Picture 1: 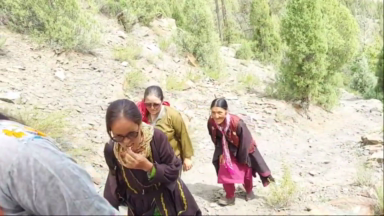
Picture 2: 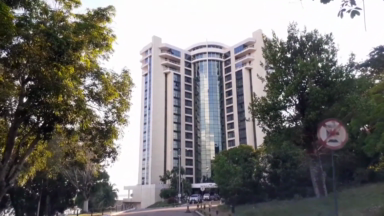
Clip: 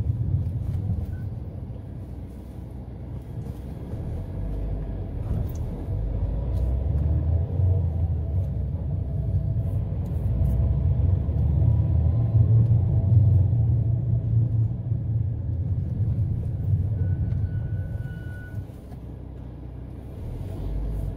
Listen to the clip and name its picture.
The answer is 2